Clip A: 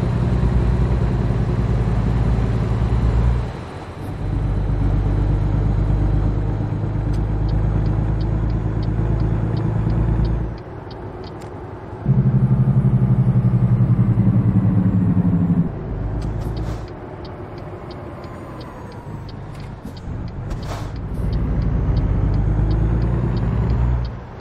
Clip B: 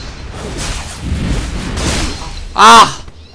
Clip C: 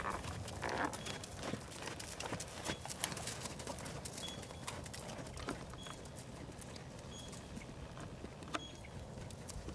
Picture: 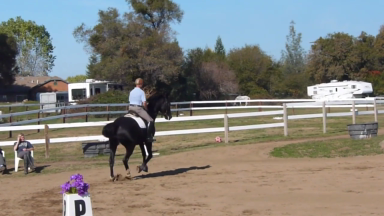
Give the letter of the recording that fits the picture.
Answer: C